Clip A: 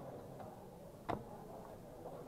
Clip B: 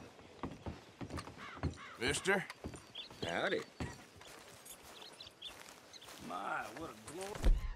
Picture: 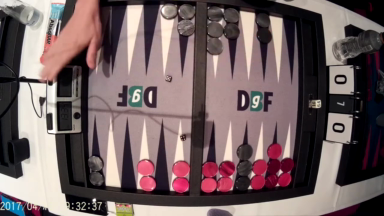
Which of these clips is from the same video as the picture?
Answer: A